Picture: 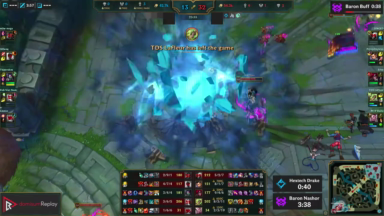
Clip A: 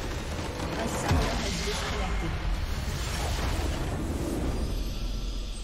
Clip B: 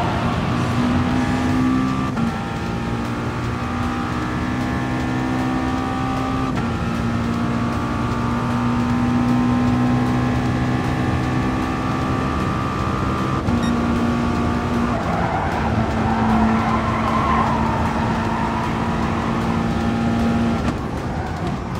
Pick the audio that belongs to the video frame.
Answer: A